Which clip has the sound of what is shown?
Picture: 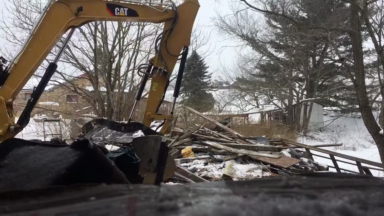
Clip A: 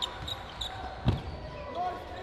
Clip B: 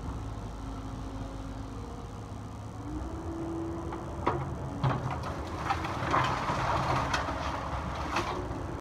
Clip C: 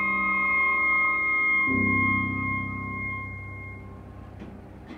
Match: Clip B